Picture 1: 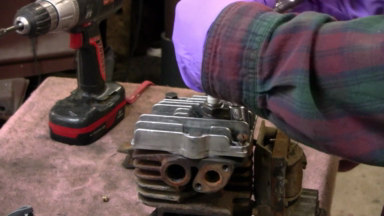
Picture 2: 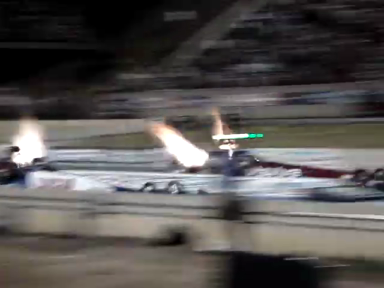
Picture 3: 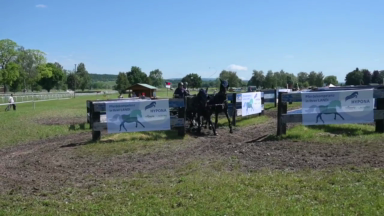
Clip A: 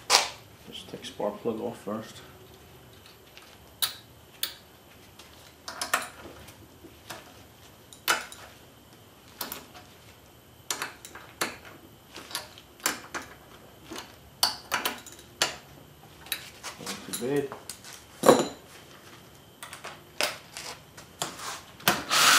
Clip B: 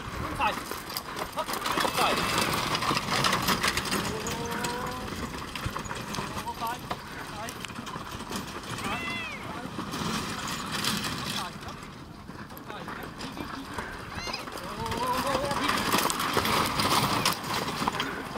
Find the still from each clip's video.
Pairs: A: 1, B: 3